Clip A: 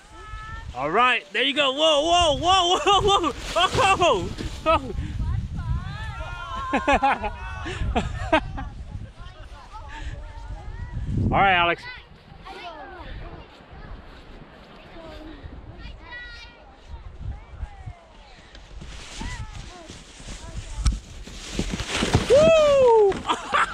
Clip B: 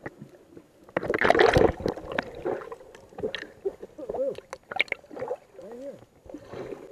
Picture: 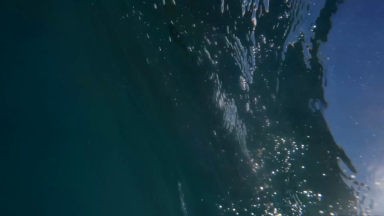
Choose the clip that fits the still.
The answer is B